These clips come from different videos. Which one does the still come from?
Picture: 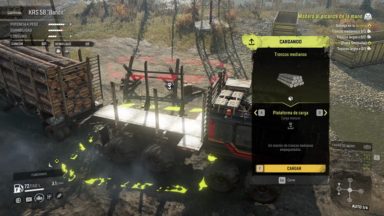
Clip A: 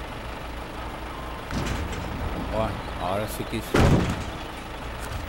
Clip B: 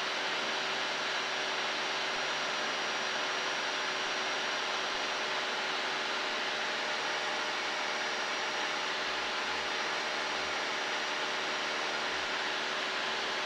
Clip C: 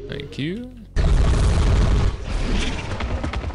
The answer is A